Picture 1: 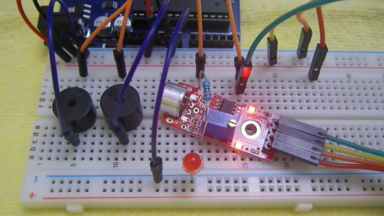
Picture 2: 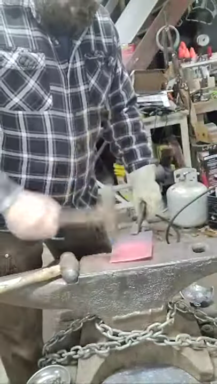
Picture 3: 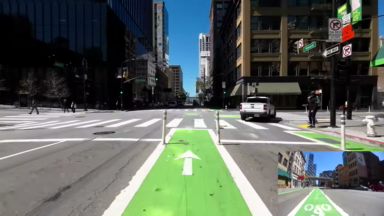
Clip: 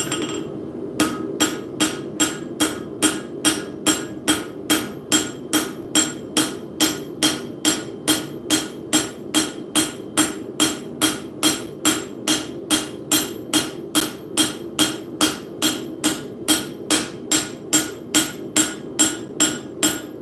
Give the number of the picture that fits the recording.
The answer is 2